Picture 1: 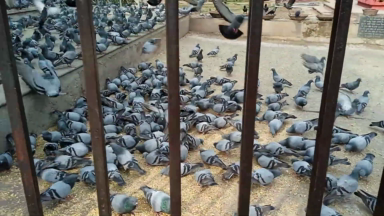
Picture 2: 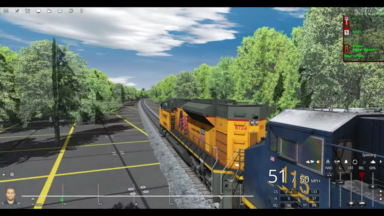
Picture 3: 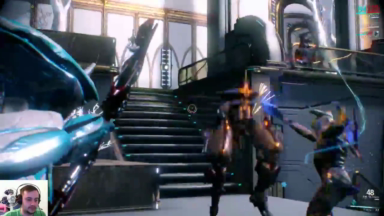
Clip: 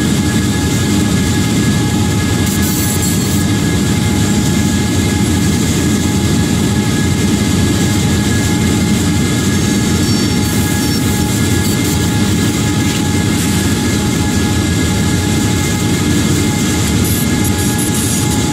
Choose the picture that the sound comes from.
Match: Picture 2